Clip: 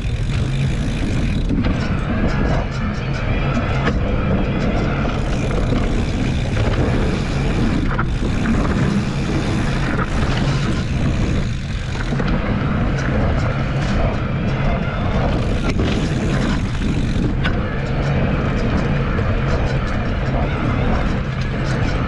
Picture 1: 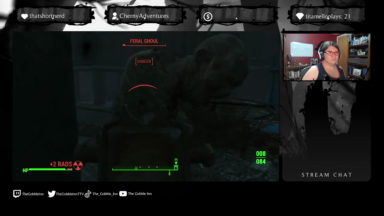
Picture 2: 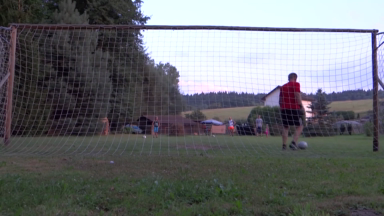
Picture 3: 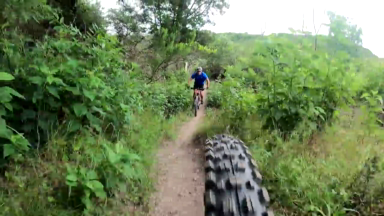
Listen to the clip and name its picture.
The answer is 3